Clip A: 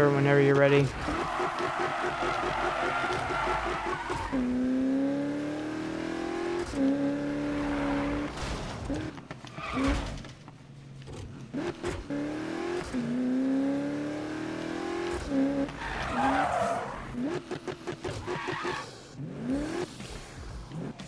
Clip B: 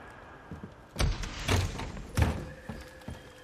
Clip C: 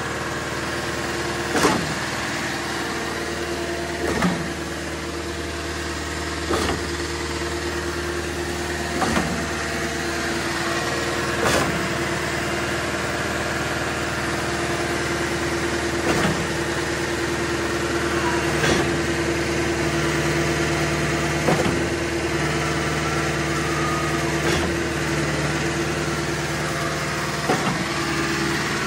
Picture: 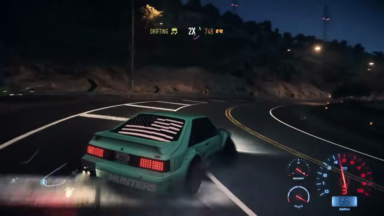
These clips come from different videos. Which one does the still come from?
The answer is A